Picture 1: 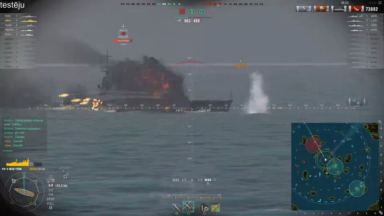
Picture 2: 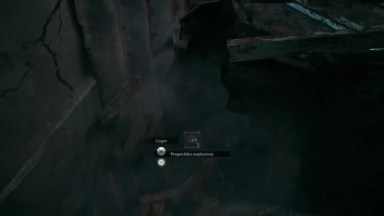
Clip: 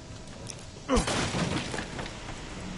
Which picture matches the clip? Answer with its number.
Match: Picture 2